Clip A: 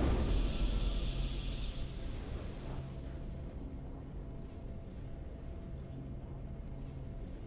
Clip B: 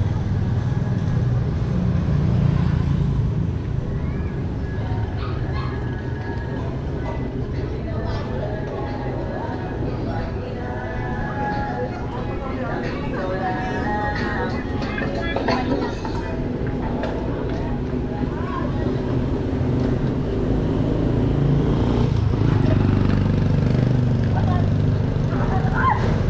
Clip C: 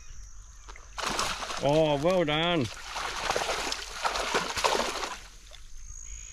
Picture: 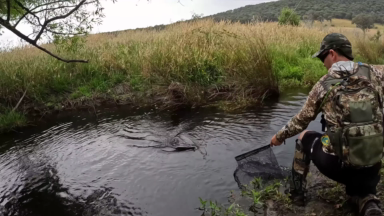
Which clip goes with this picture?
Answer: C